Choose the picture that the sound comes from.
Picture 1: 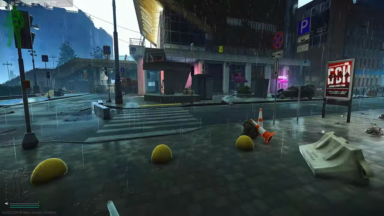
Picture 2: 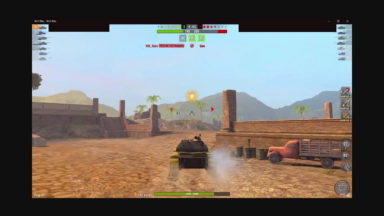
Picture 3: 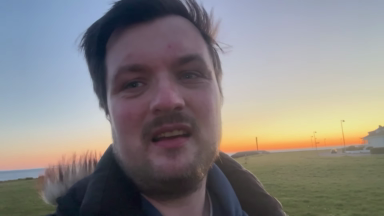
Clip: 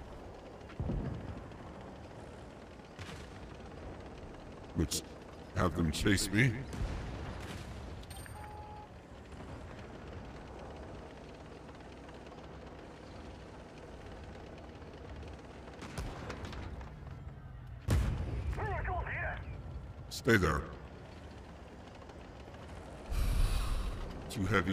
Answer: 2